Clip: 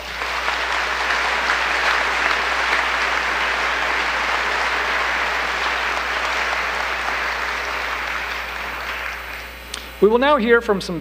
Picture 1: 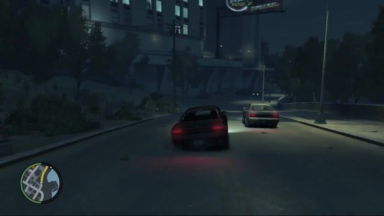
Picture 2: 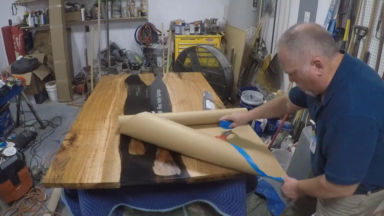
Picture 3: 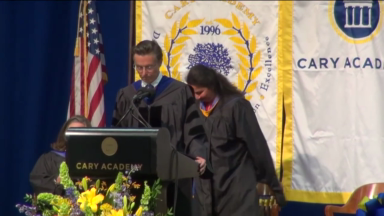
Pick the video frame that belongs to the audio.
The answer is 3